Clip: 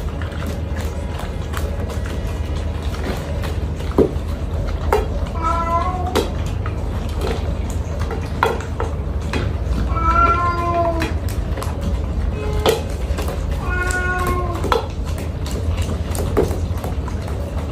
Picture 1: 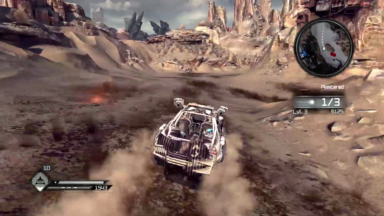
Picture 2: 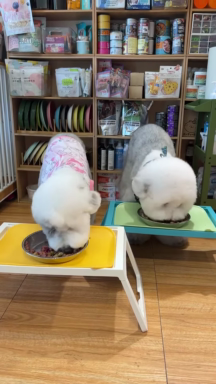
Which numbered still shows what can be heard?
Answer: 2